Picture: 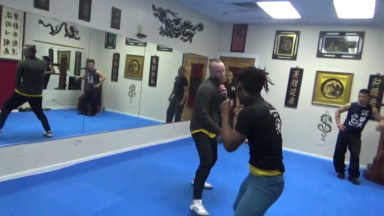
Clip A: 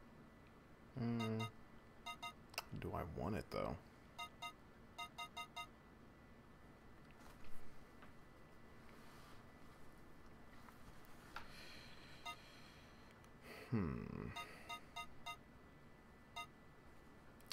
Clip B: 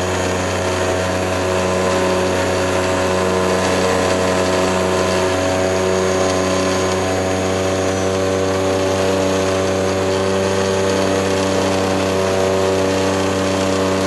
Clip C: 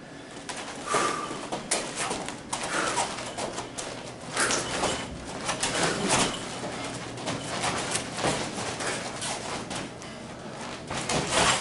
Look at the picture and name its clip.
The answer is C